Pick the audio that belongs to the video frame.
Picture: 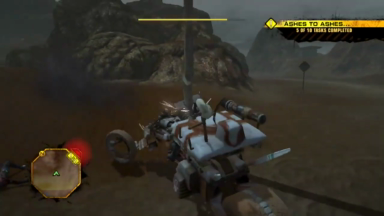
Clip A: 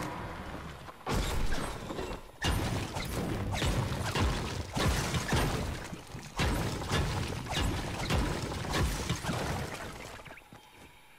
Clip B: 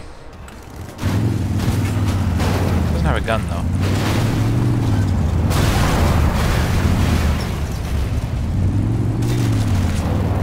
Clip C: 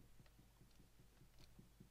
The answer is B